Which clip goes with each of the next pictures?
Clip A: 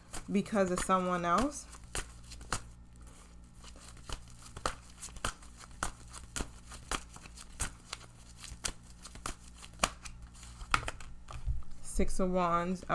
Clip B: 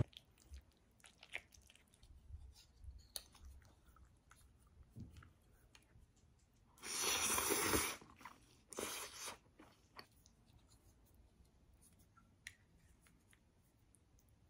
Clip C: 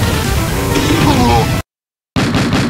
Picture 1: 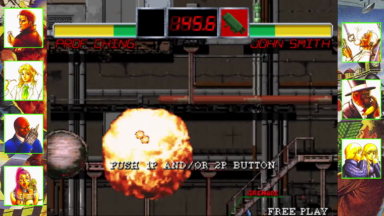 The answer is C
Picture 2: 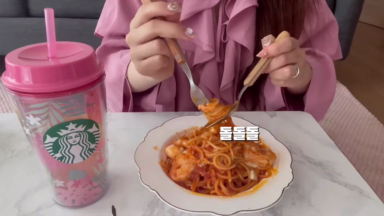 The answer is B